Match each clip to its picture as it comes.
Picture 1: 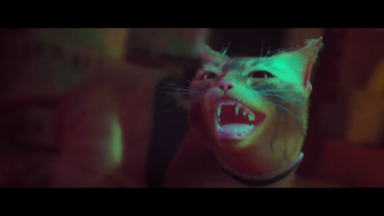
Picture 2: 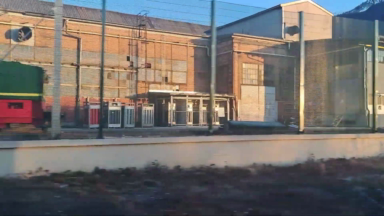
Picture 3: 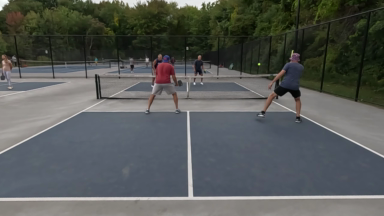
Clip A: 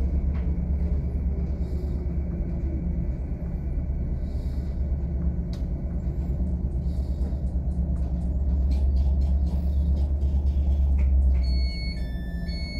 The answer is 2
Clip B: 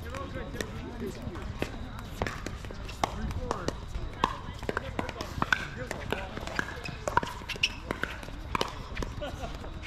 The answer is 3